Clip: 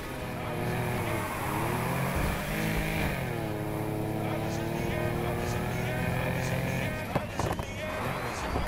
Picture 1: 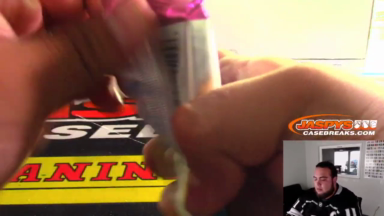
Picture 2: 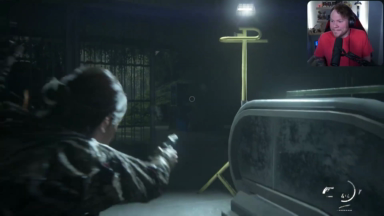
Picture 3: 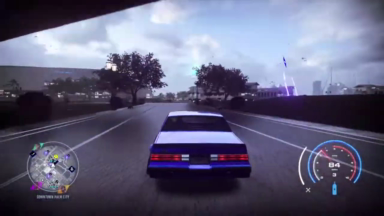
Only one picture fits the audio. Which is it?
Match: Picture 3